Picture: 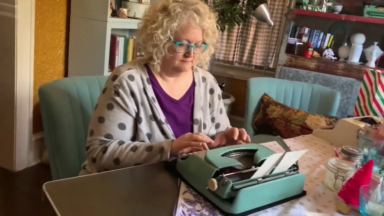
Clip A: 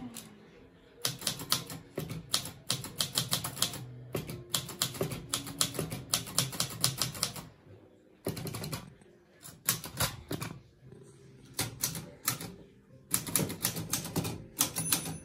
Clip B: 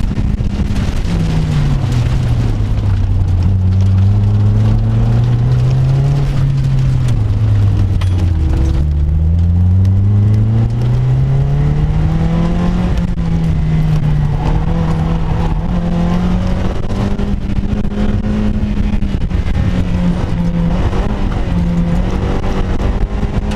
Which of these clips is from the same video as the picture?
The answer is A